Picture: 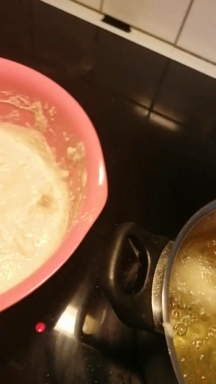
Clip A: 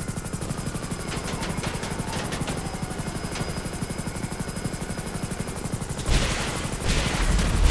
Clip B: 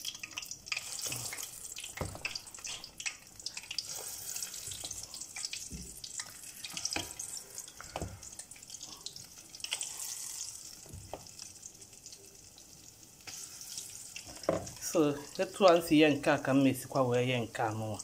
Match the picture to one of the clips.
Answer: B